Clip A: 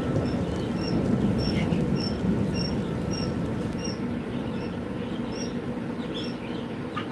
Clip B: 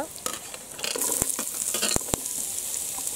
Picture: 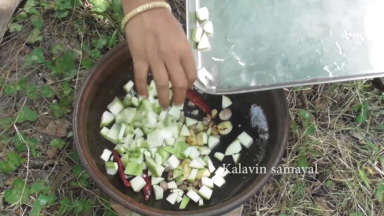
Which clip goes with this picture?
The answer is B